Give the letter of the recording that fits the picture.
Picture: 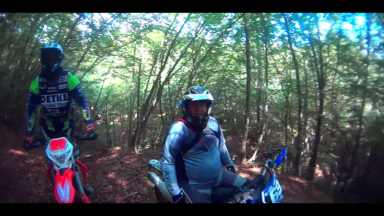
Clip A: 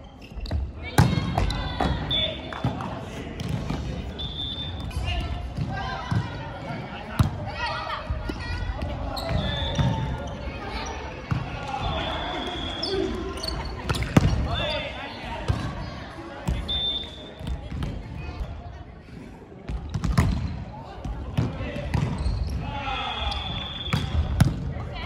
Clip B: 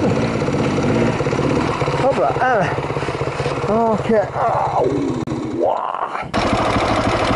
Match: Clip B